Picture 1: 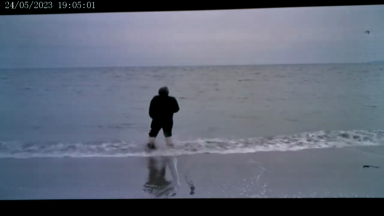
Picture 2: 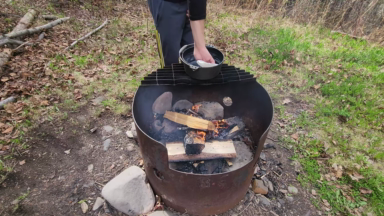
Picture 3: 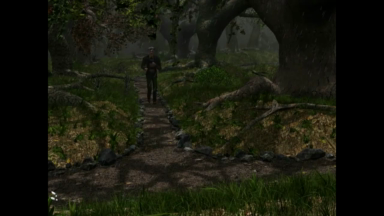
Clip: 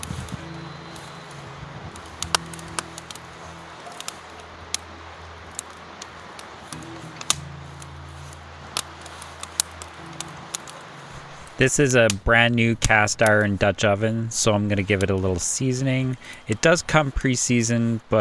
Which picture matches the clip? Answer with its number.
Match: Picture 2